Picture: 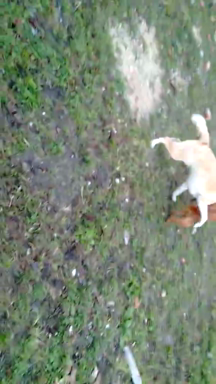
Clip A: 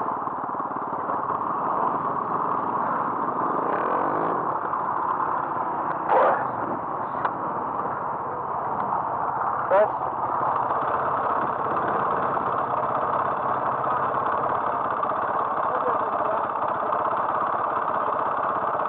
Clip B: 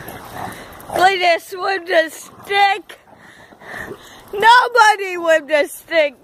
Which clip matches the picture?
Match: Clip B